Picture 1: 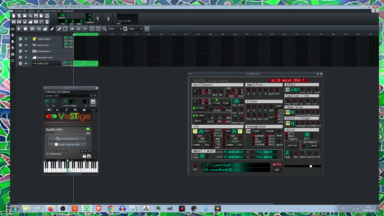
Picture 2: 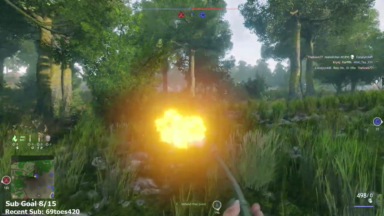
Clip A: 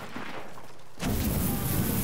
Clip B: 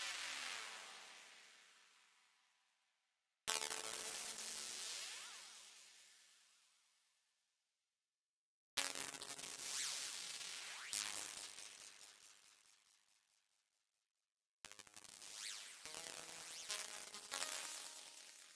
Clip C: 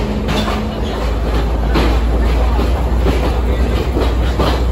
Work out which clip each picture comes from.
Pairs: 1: B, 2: A